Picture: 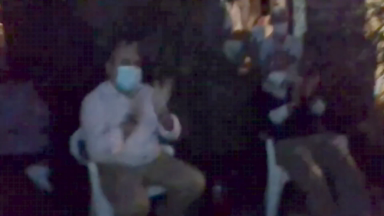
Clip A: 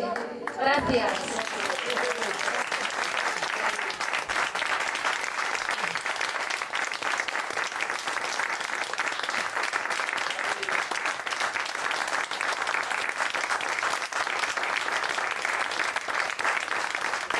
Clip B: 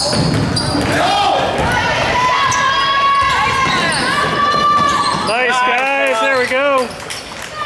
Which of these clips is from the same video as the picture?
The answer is A